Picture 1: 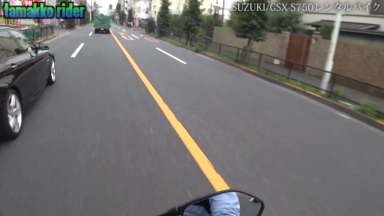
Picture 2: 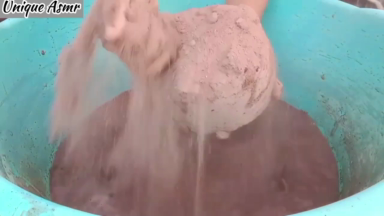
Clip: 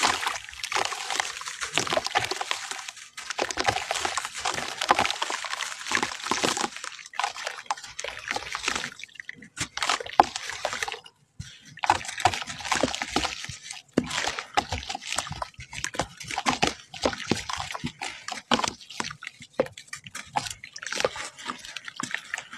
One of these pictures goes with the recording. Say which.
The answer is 2